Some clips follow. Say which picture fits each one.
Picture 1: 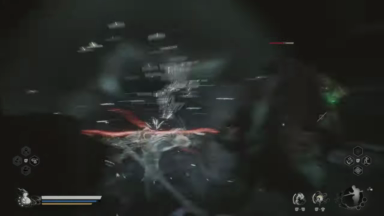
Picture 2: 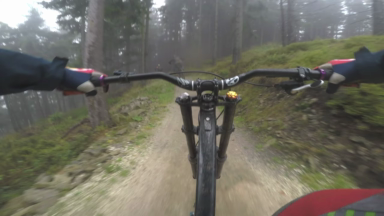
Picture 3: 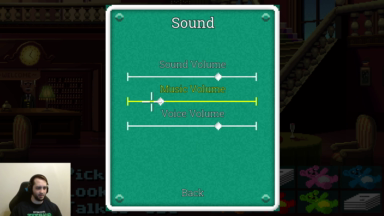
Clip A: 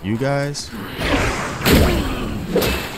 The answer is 1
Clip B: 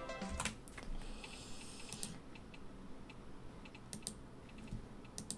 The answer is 3